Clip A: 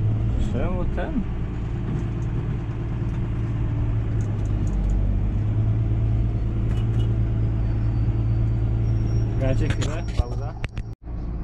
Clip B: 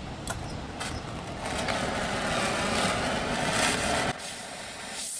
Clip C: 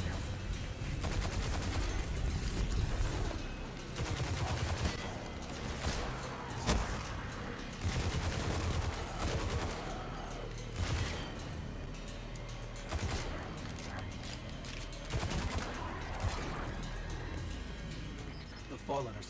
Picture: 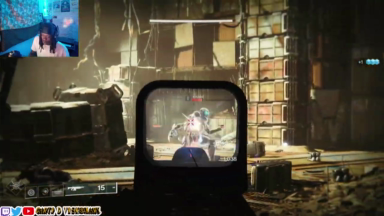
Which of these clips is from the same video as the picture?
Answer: C